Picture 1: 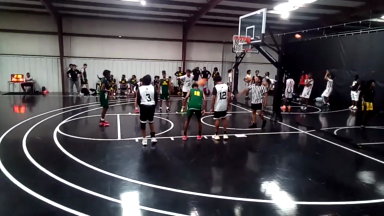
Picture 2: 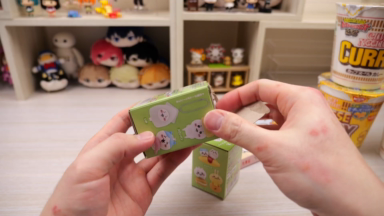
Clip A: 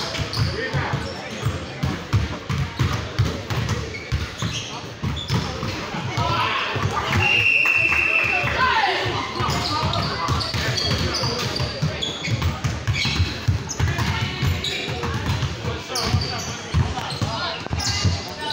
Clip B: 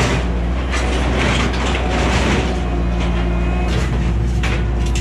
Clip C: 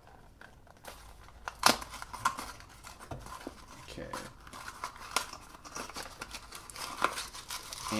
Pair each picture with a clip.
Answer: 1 A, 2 C